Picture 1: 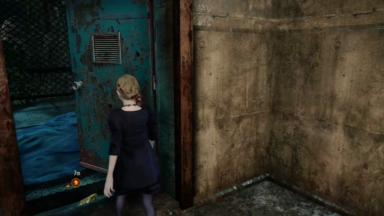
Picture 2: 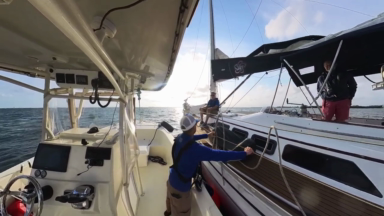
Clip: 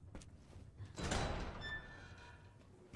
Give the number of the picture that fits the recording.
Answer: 1